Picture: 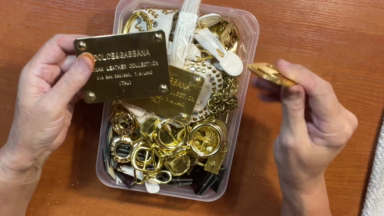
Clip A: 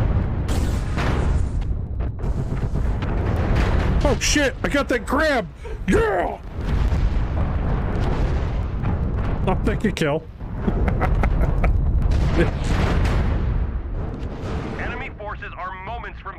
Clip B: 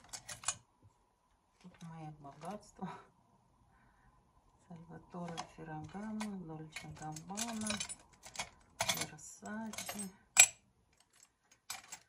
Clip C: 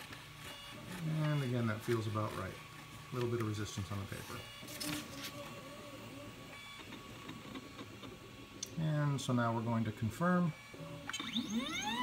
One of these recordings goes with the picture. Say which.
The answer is B